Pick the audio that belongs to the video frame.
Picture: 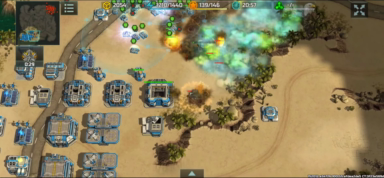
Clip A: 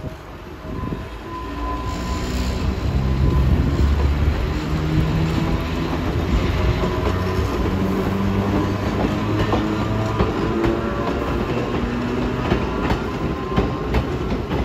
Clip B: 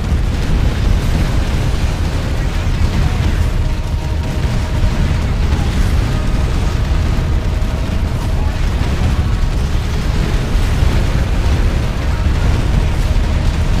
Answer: B